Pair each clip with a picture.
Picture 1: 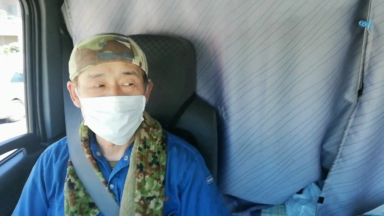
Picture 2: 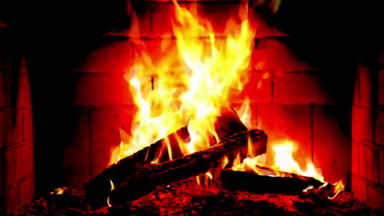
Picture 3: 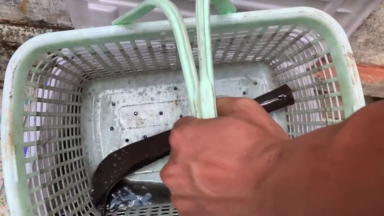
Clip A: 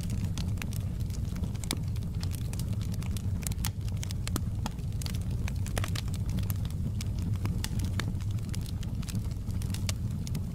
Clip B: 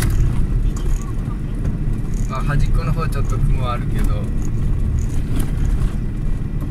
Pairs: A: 2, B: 1